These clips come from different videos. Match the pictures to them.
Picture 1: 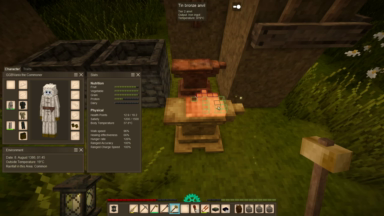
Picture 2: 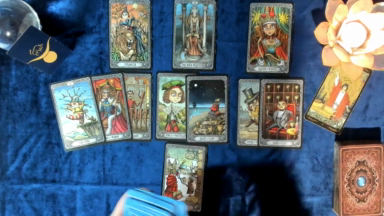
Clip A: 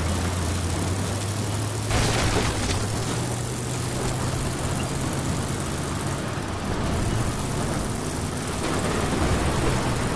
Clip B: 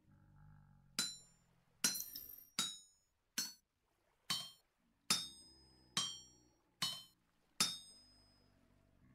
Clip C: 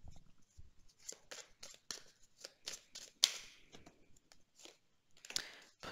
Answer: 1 B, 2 C